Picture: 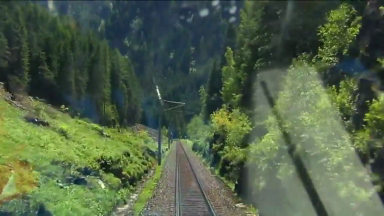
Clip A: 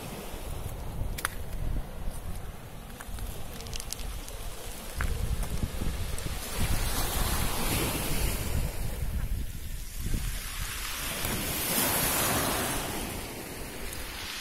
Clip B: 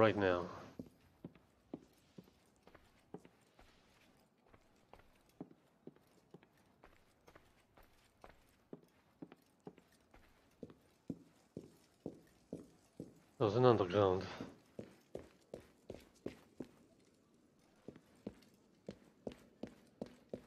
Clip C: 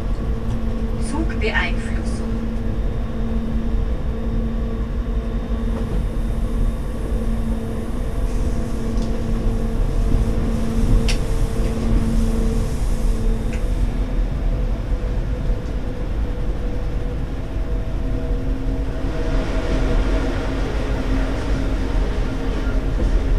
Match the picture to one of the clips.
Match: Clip C